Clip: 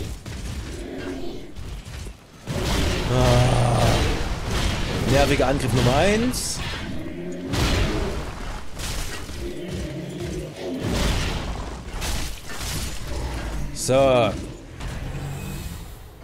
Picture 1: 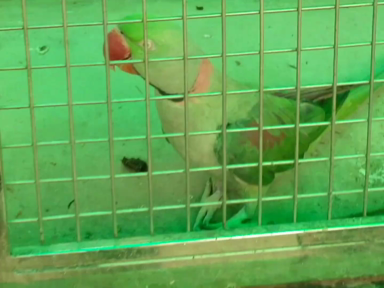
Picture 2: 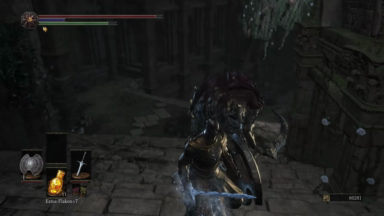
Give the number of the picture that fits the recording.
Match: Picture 2